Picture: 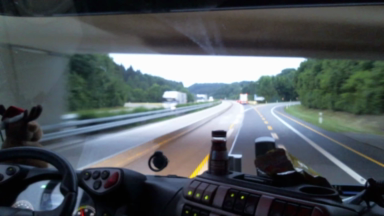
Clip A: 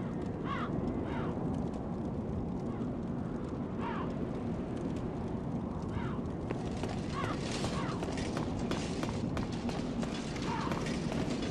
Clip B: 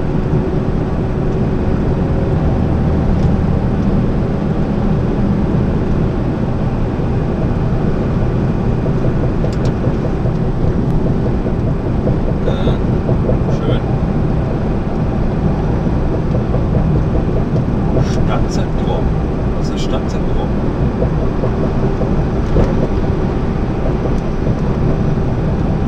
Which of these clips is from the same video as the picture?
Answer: B